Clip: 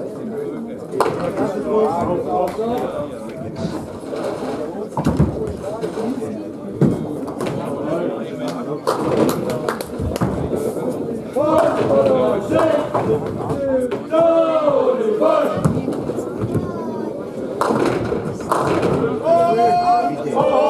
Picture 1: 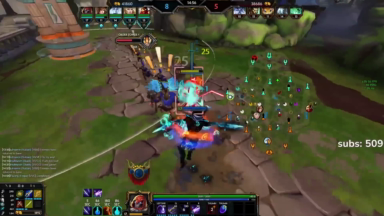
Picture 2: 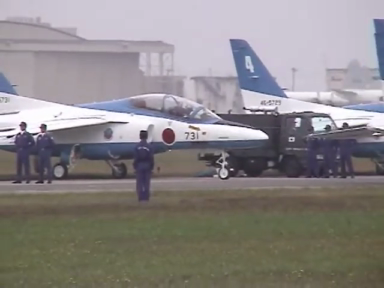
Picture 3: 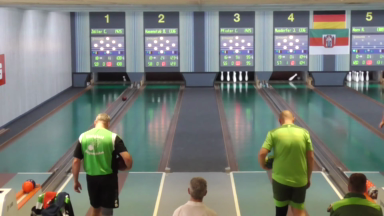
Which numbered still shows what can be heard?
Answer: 3